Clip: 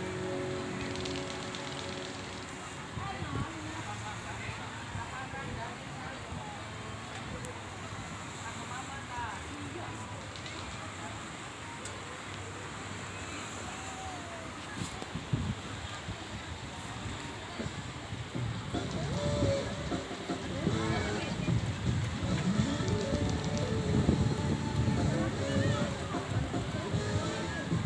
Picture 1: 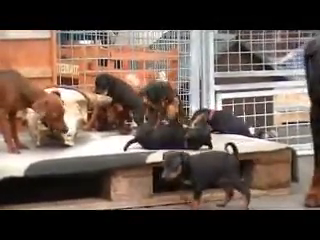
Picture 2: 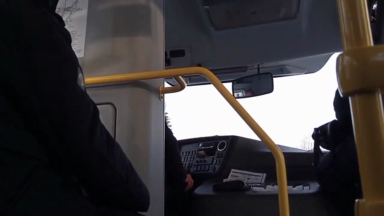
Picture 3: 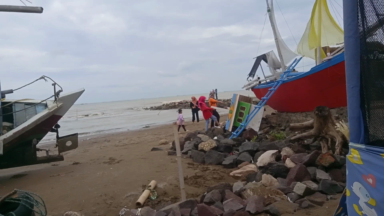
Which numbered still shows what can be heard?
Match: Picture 3